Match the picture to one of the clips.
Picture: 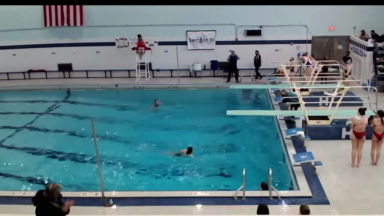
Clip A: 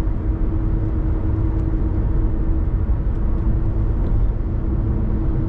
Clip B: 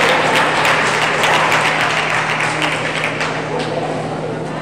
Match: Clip B